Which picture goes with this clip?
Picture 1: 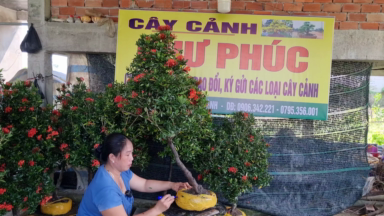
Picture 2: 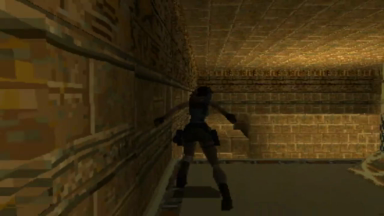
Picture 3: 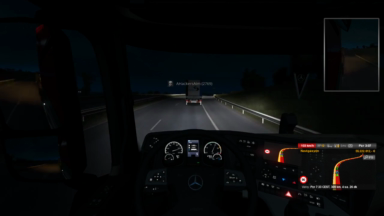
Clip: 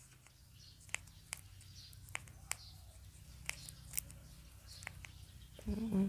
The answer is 1